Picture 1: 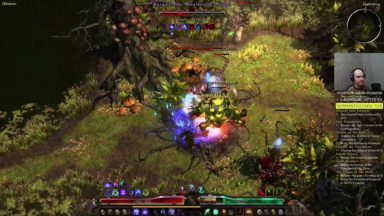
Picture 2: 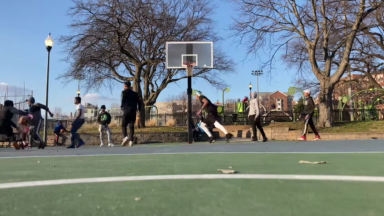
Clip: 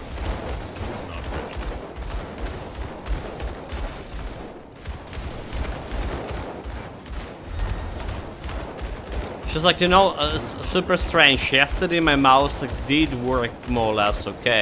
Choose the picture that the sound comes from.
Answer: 1